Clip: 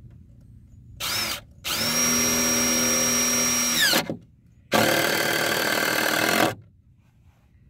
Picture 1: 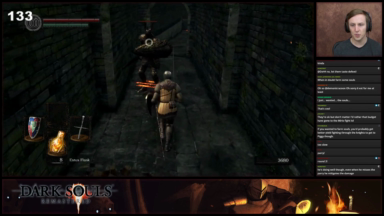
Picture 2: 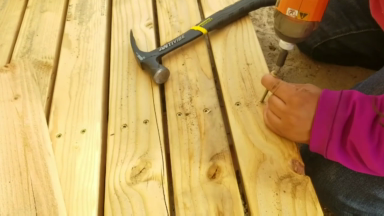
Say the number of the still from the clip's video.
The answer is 2